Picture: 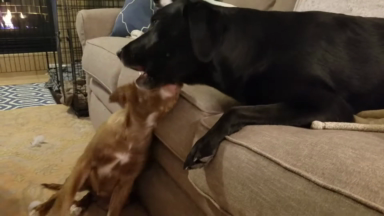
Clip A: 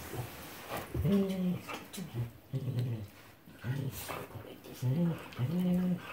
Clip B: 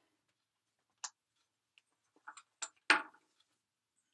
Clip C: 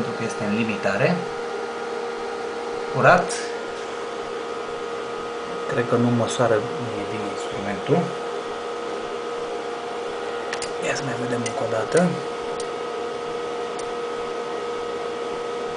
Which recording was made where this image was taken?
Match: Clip A